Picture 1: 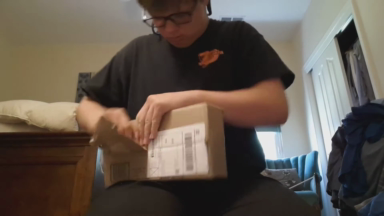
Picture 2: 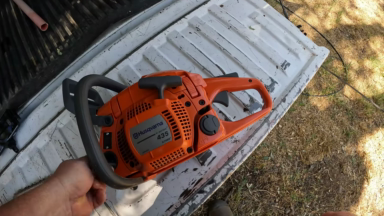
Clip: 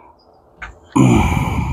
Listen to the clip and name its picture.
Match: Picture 2